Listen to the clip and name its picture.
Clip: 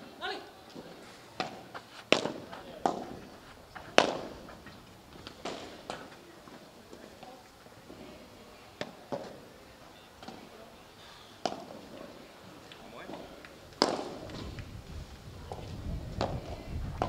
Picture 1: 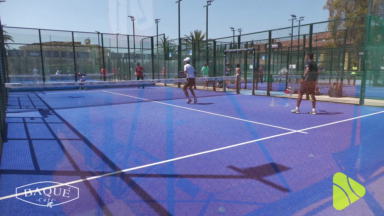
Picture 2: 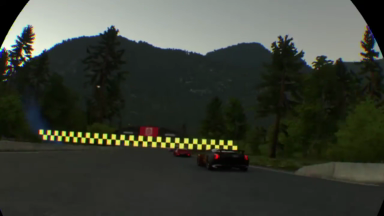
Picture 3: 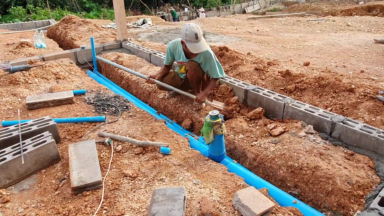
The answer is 1